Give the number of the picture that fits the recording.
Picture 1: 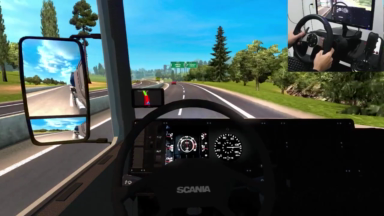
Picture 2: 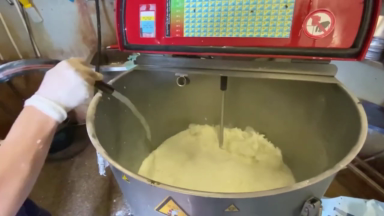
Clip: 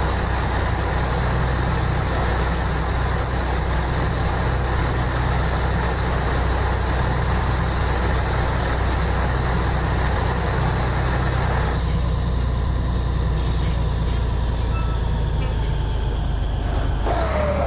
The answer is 1